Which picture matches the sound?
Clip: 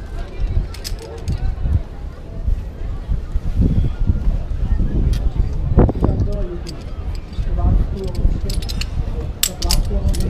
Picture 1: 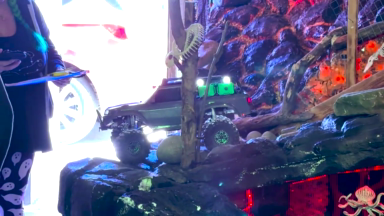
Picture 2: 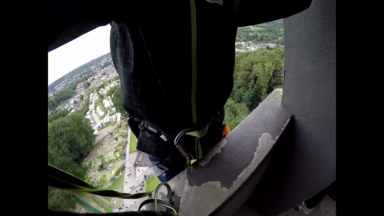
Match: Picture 2